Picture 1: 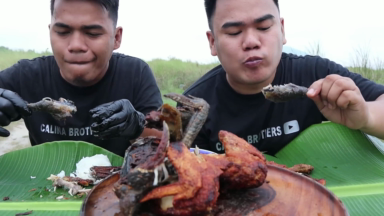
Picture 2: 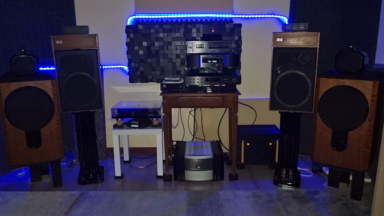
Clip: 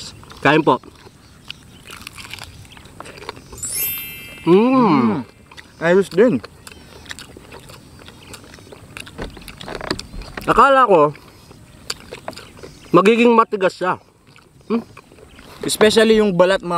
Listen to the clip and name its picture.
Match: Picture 1